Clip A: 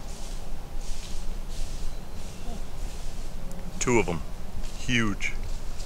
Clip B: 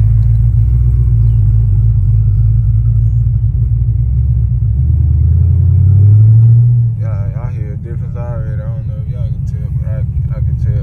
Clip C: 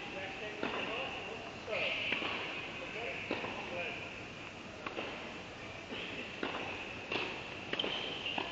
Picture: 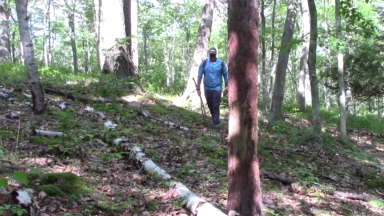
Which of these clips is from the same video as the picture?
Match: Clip A